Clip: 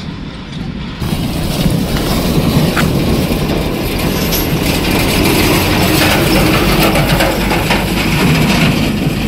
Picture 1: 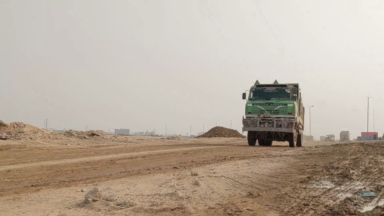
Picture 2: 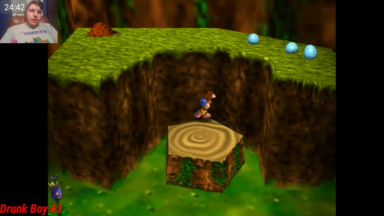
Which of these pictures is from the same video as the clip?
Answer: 1